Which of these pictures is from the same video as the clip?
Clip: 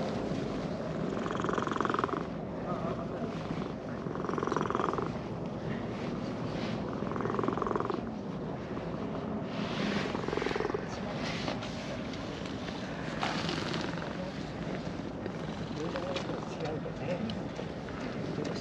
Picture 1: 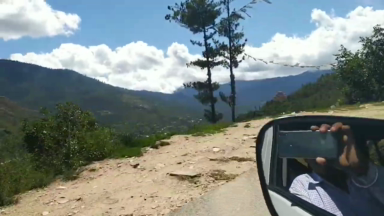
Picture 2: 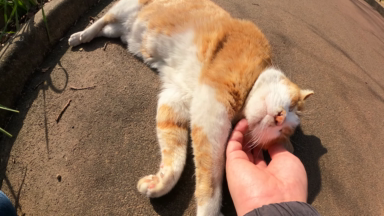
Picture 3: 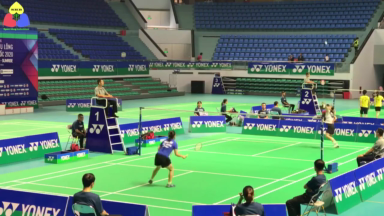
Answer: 2